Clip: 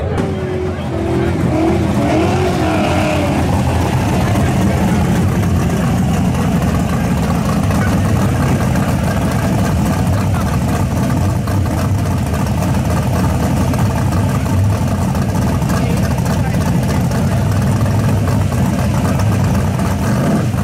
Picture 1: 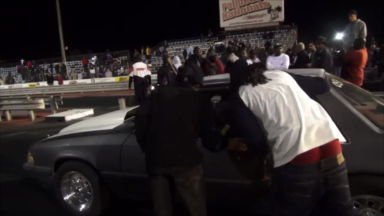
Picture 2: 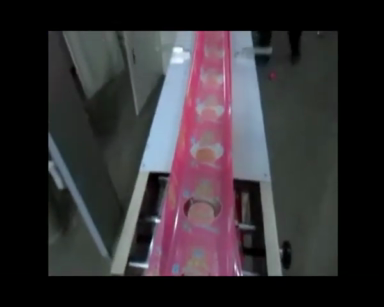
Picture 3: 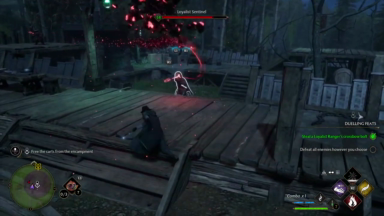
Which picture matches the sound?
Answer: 1